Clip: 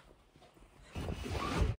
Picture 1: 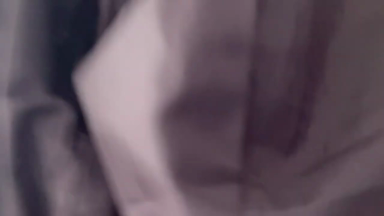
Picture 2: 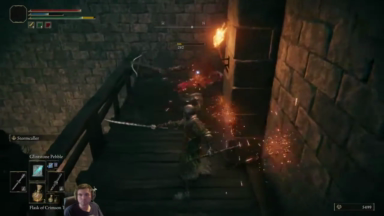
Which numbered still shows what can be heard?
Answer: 1